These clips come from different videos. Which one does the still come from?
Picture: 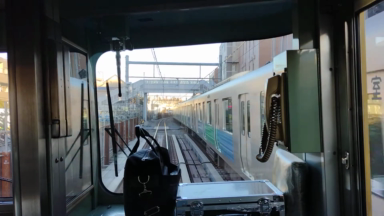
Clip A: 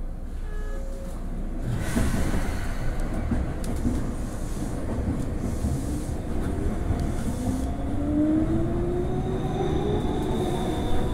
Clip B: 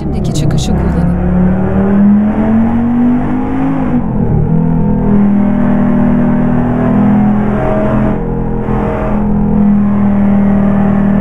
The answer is A